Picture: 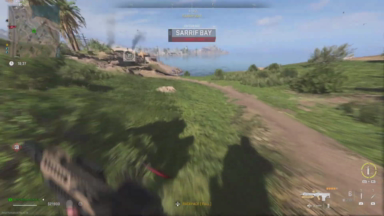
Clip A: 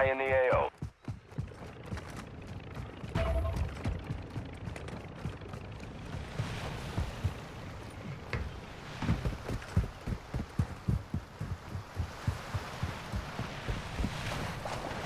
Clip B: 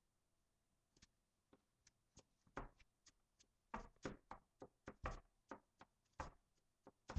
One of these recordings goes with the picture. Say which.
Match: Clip A